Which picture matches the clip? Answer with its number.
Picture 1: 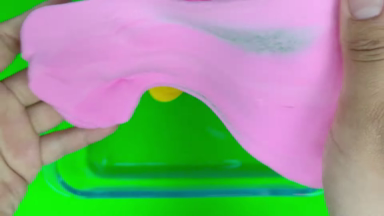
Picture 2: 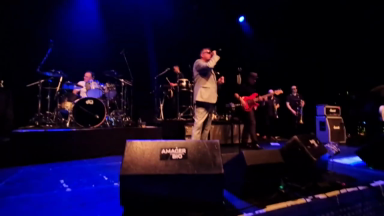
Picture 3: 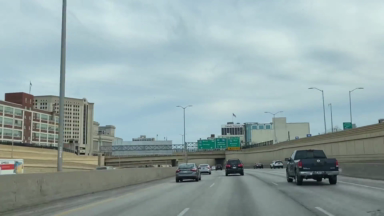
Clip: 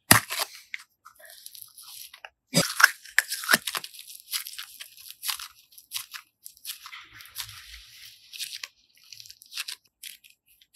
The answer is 1